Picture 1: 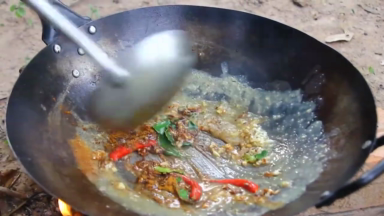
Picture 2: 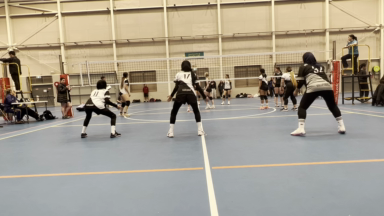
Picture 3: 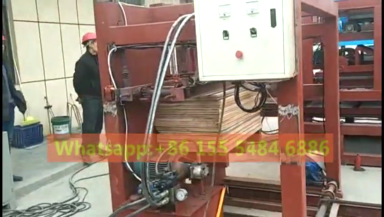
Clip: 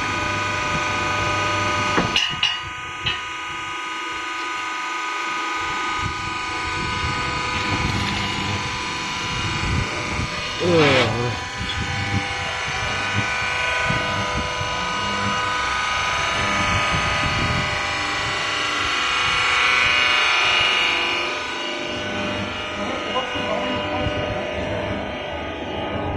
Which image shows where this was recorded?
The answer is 3